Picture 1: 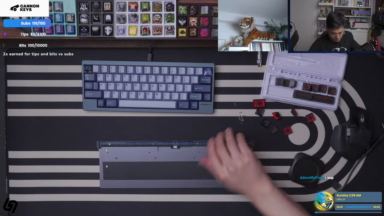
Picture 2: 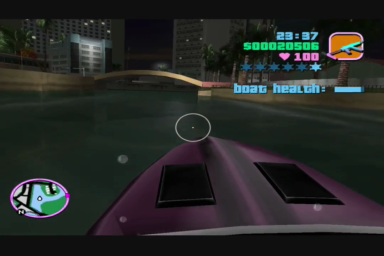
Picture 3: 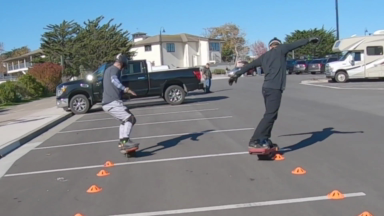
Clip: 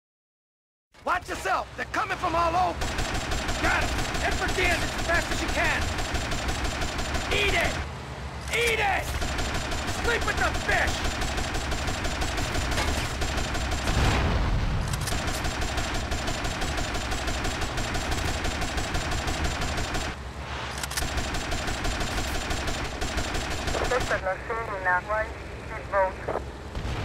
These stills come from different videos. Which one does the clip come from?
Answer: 2